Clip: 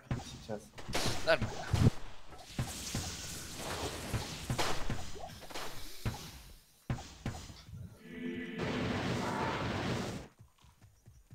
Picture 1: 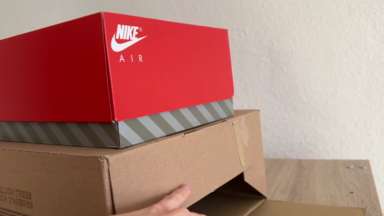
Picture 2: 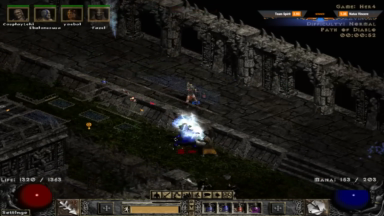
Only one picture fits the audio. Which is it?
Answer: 2